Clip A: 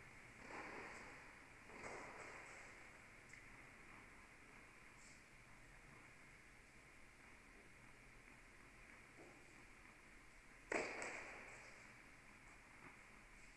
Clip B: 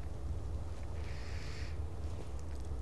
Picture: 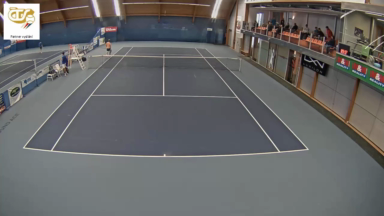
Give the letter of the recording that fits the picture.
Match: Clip A